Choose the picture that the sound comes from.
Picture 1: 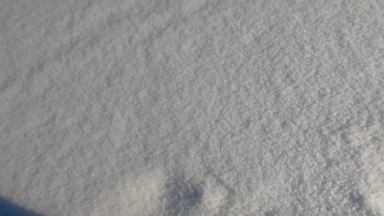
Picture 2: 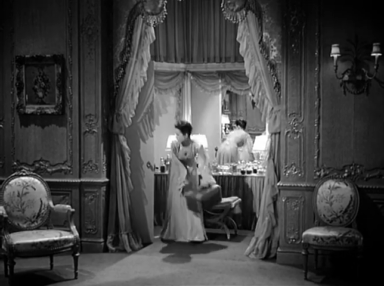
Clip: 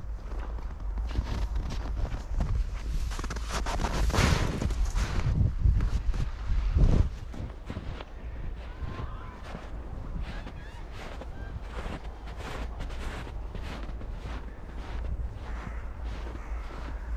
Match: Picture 1